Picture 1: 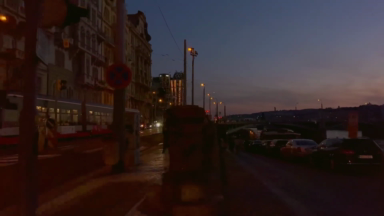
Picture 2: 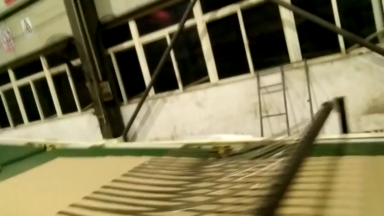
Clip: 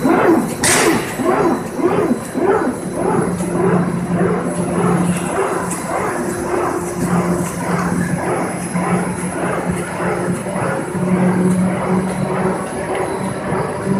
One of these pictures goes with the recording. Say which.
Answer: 2